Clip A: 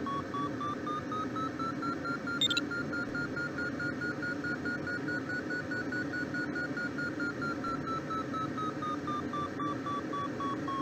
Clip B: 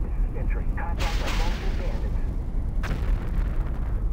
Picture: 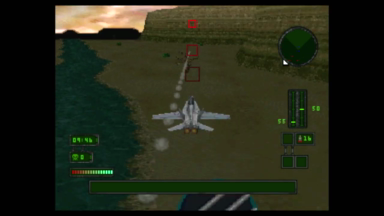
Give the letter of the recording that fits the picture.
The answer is B